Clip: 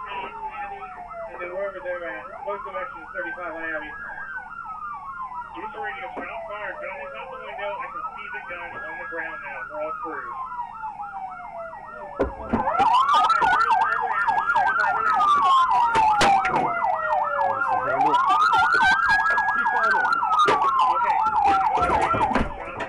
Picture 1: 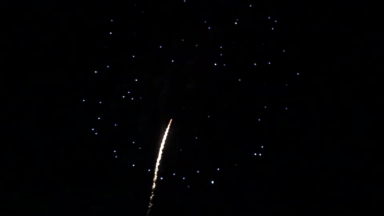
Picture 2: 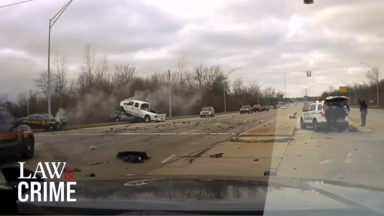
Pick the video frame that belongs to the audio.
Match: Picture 2